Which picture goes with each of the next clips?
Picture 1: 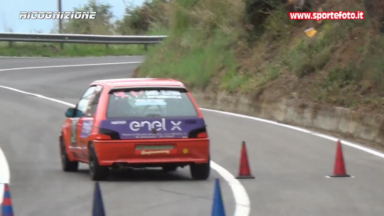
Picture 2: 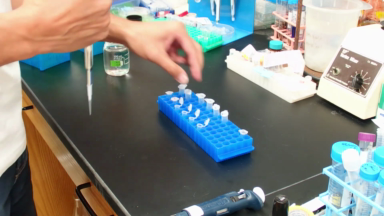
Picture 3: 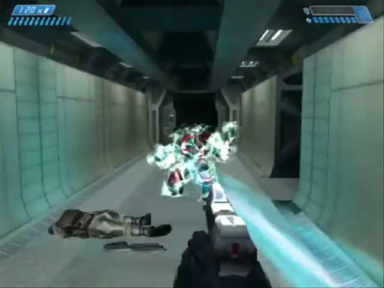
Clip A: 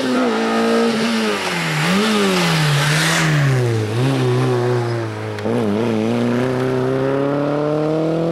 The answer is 1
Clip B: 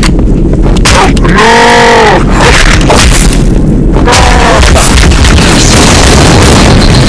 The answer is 3